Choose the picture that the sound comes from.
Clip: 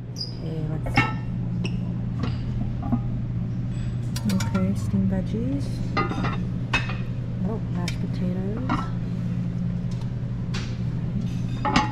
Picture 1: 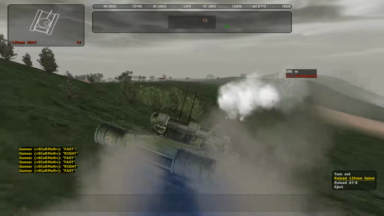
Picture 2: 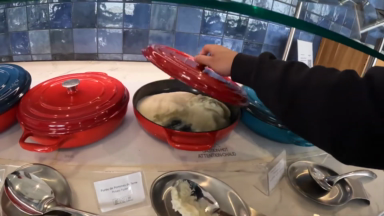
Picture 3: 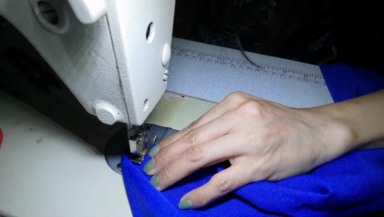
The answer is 2